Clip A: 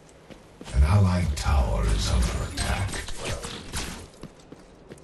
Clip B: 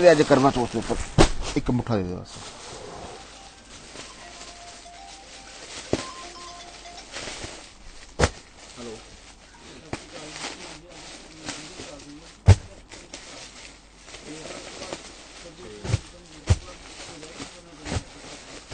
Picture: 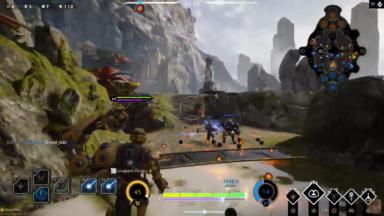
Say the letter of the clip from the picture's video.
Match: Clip A